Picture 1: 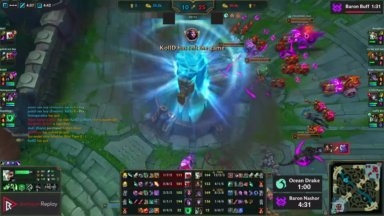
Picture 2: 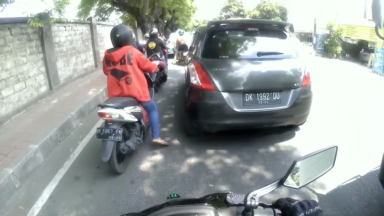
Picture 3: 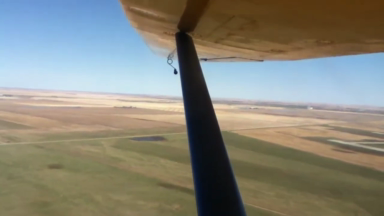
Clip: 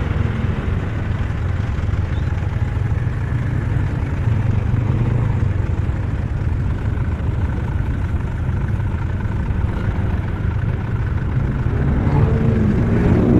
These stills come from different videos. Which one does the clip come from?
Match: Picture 2